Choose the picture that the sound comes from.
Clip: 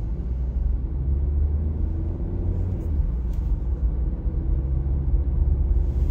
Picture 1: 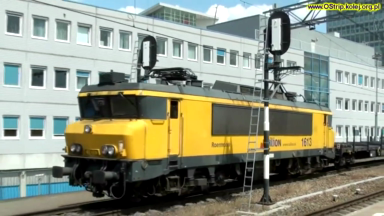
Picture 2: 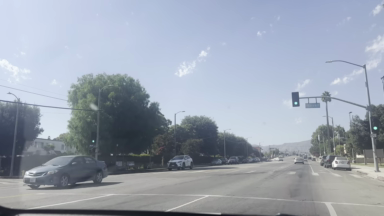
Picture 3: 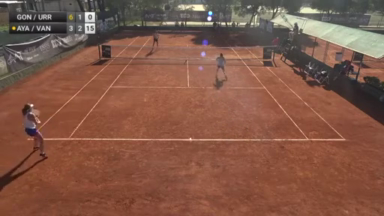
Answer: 2